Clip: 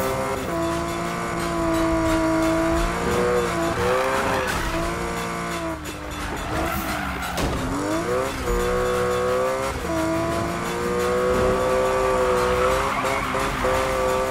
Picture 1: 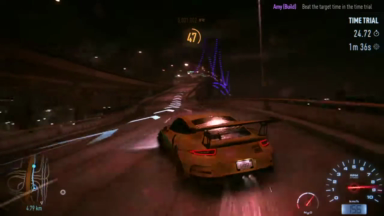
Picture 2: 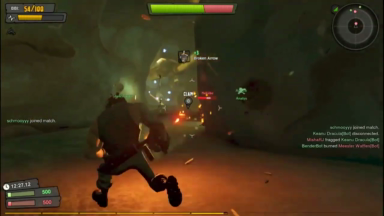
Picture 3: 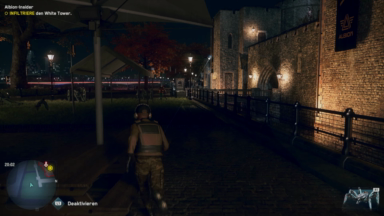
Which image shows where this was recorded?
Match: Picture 1